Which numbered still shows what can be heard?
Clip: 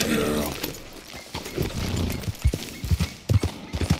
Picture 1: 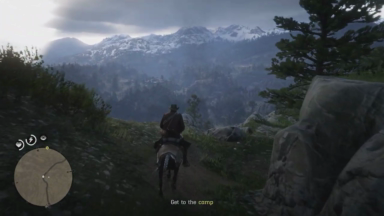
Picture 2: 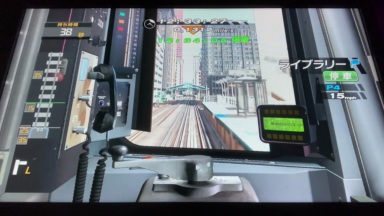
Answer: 1